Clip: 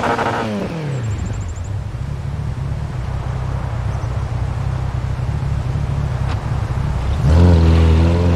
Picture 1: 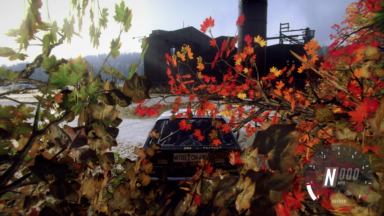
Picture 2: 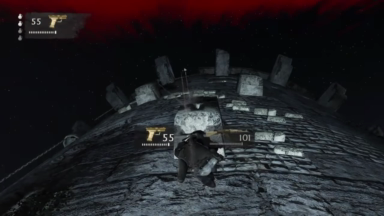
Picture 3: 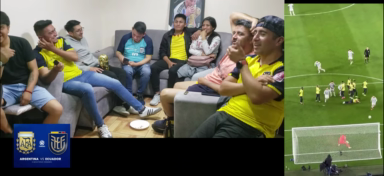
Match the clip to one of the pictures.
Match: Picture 1